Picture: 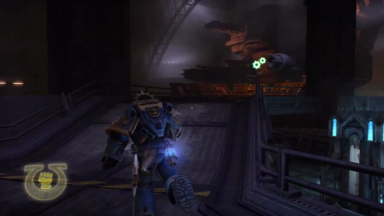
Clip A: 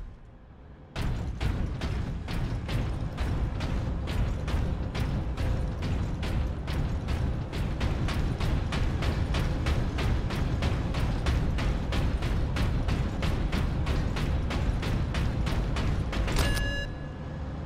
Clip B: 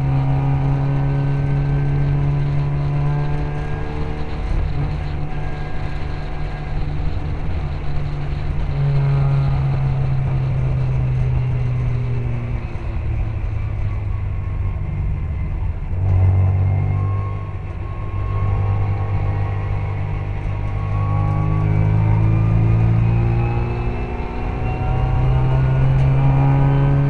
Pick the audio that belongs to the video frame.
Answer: A